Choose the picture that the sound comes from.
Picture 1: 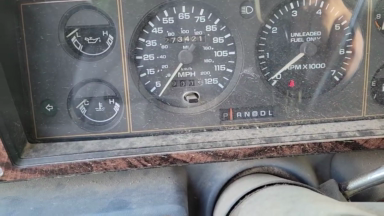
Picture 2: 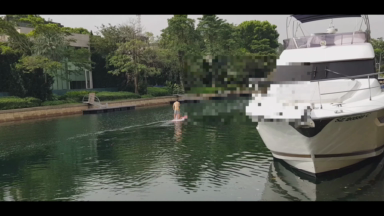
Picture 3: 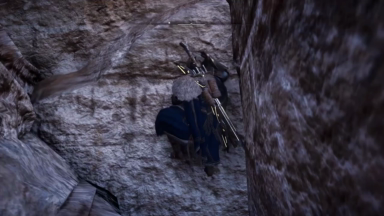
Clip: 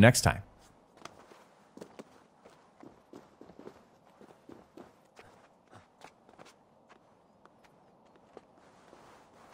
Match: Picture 3